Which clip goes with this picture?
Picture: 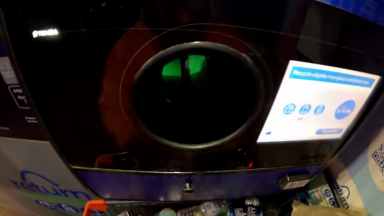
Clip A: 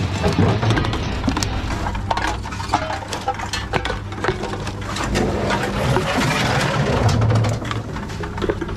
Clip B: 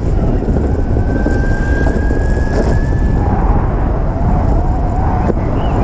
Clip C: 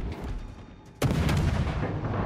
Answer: A